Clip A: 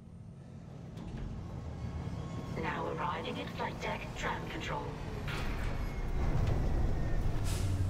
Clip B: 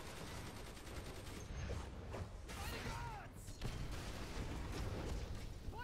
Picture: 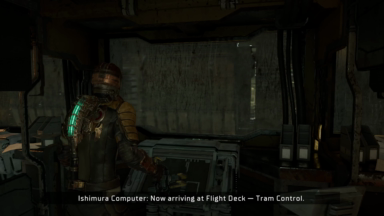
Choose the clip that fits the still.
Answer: A